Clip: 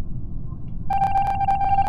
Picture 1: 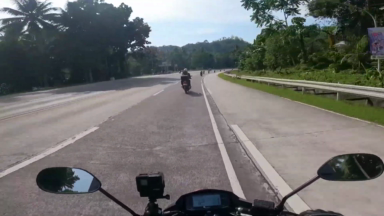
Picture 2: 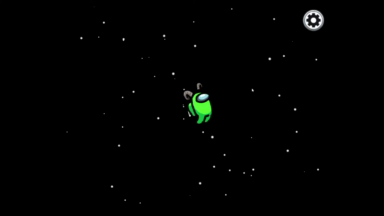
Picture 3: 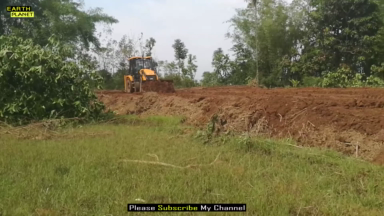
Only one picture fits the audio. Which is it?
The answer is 2